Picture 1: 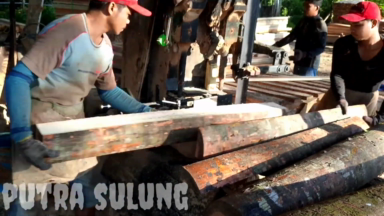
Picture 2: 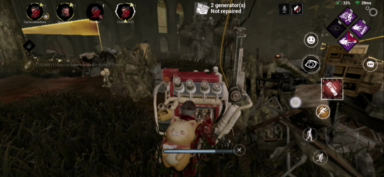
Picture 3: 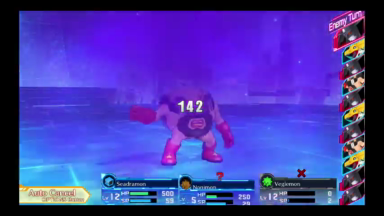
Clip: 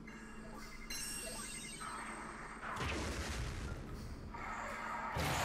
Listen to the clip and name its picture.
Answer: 3